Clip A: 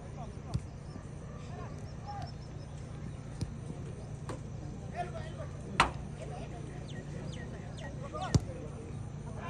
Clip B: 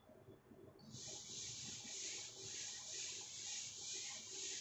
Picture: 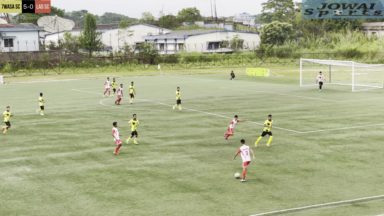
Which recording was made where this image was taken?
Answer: A